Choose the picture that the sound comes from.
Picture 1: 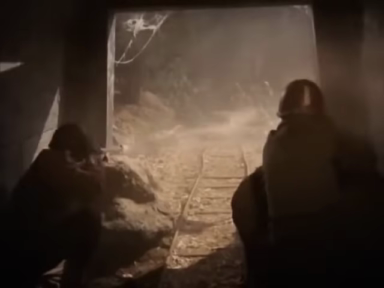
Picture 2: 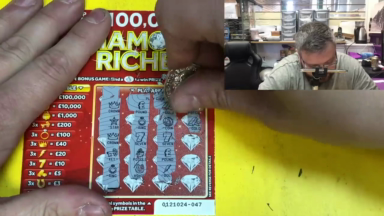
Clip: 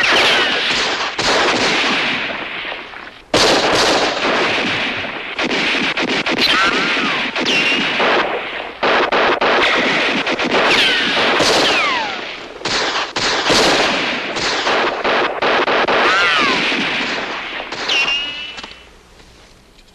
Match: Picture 1